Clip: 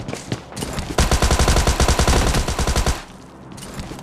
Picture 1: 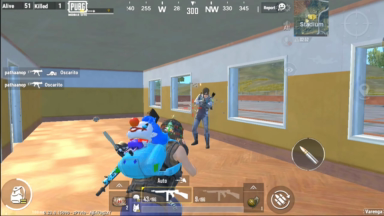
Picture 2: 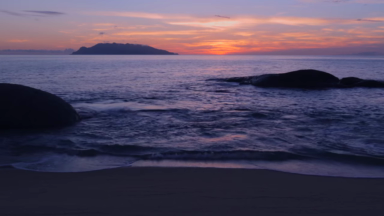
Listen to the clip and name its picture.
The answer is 1